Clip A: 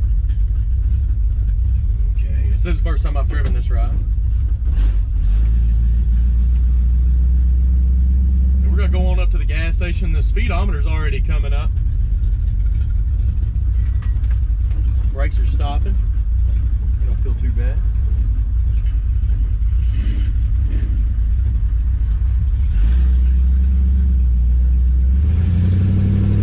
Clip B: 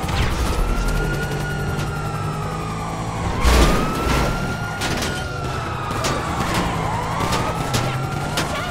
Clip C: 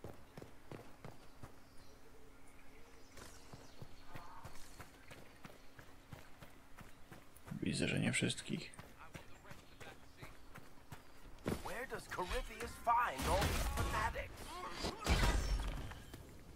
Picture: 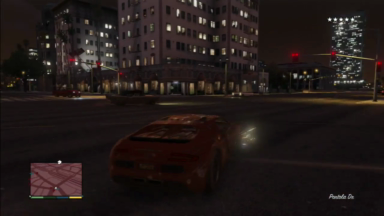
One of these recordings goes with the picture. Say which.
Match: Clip B